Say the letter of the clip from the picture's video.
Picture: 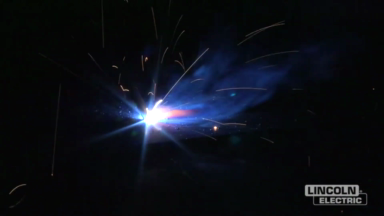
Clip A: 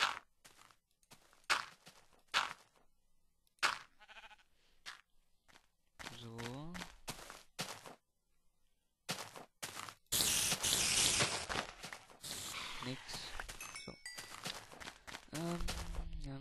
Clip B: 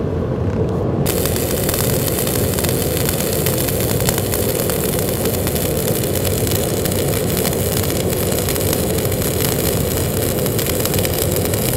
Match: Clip B